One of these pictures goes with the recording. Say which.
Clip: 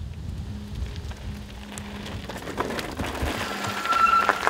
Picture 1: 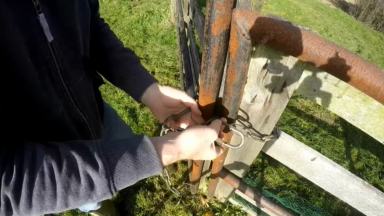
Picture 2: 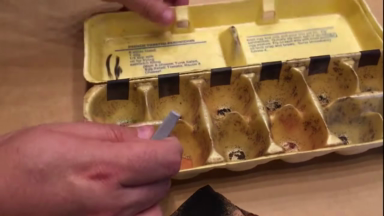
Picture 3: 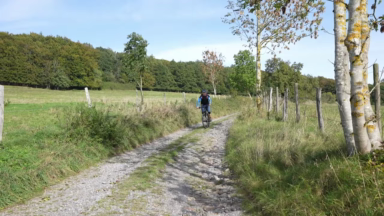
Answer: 3